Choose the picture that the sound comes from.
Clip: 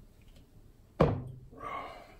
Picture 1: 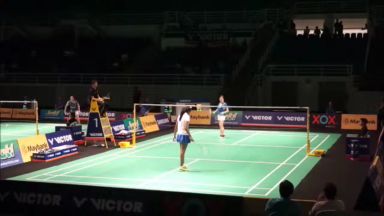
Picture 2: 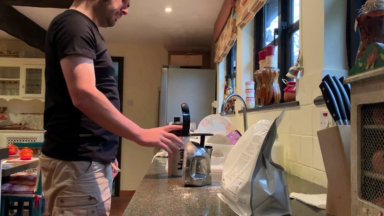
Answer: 2